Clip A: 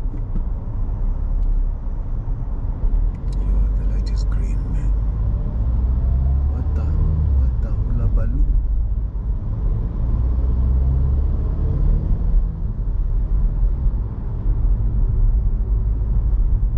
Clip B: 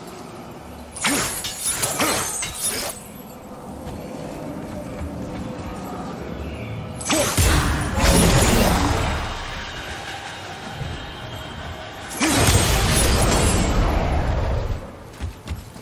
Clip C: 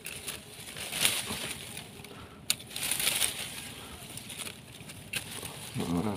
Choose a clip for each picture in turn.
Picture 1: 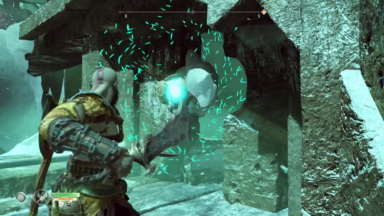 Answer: B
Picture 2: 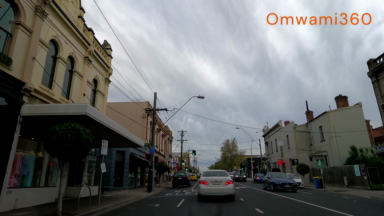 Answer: A